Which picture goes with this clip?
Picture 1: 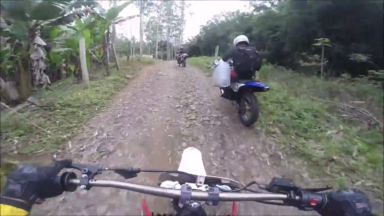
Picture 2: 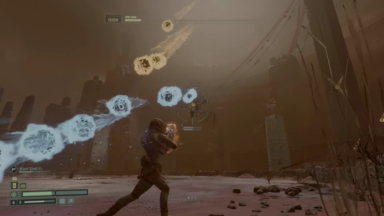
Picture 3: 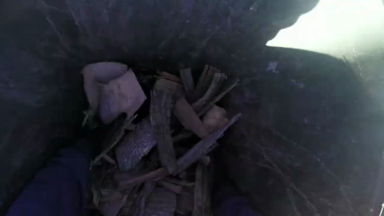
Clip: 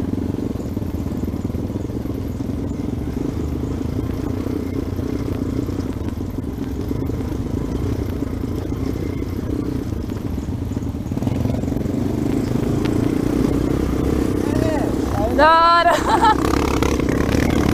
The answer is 1